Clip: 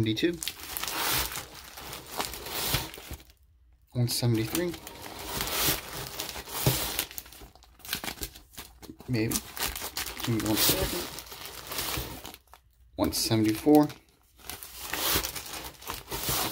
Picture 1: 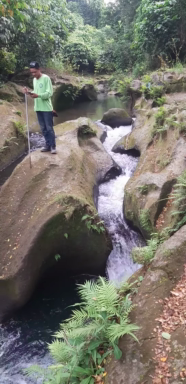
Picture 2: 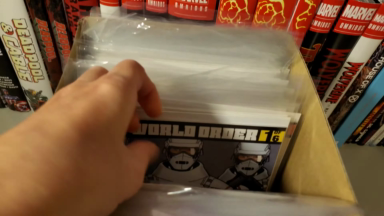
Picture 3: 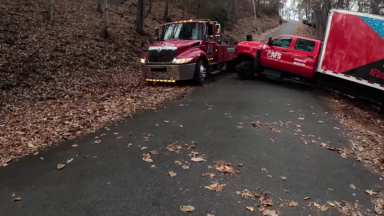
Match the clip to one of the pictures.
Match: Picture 2